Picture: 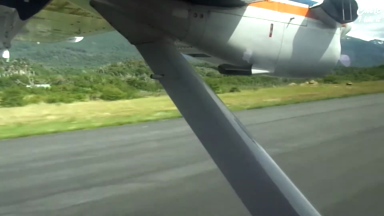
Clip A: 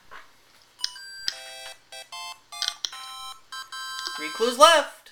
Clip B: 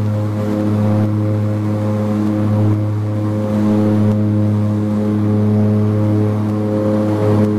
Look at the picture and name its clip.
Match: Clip B